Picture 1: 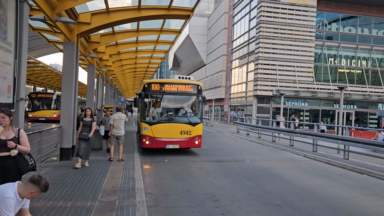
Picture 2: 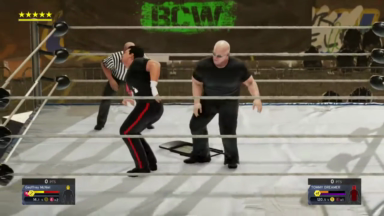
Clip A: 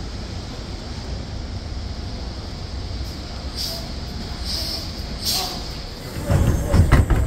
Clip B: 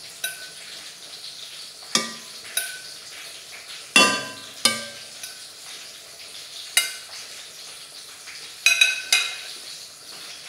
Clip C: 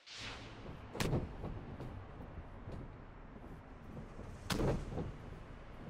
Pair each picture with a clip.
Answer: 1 A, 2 C